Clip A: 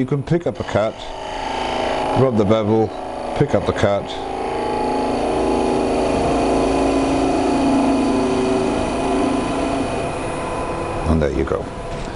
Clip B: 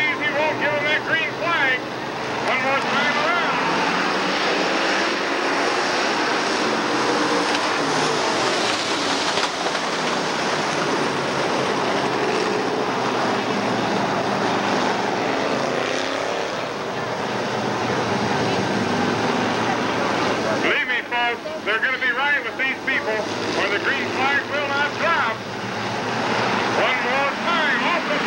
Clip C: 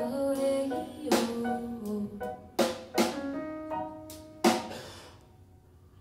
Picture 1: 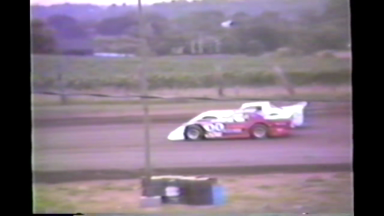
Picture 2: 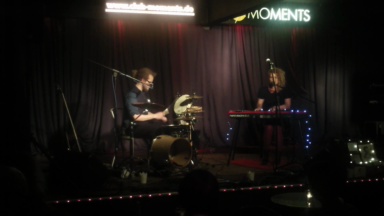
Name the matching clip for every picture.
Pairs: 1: B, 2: C